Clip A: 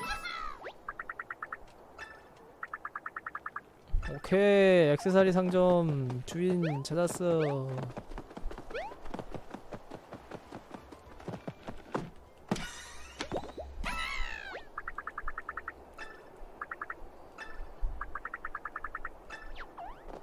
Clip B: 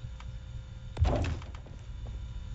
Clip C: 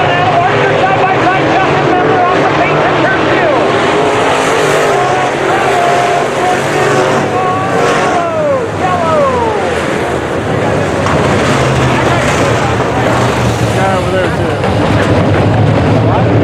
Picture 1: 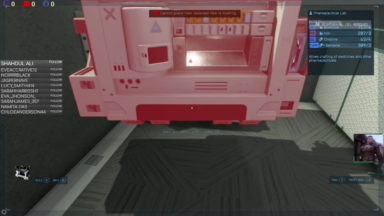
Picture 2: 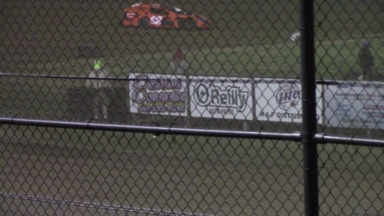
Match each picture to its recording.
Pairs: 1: B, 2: C